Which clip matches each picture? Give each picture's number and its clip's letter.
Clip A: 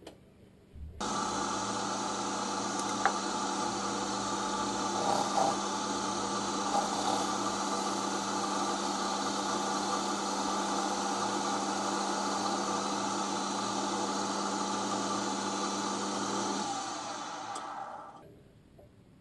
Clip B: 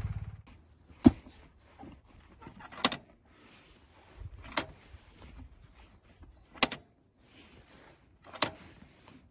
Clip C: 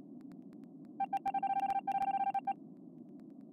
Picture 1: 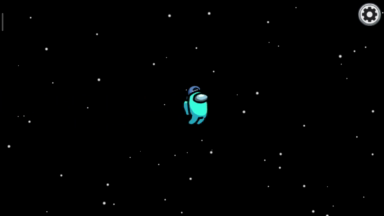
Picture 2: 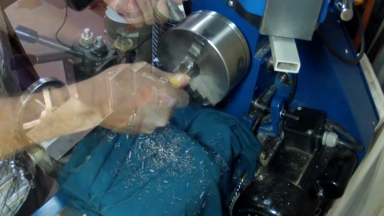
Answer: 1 C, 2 A